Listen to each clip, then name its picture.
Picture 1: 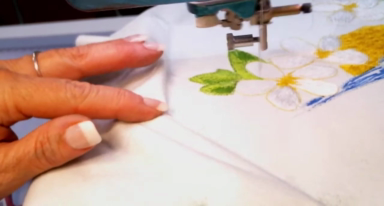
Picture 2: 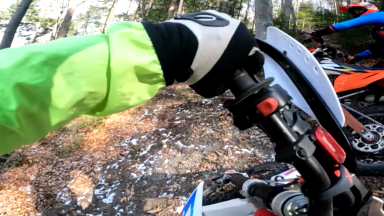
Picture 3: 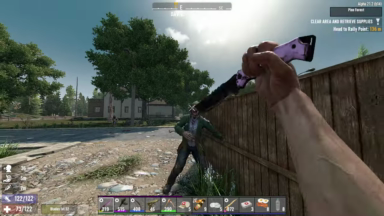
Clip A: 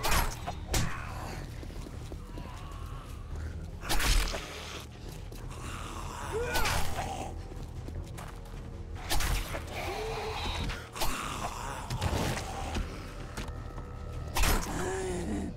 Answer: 3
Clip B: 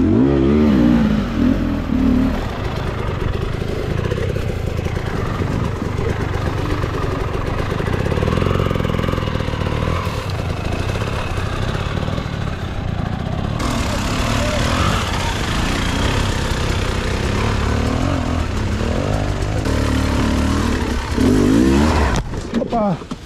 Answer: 2